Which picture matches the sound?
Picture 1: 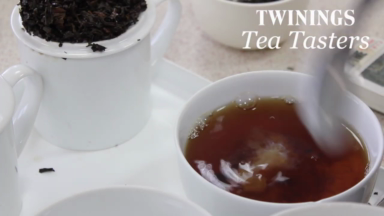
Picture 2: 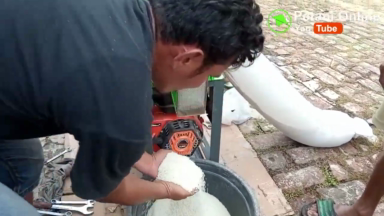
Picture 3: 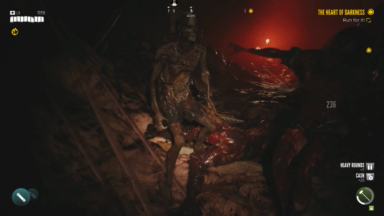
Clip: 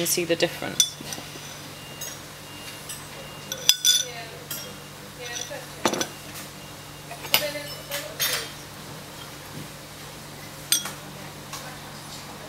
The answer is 1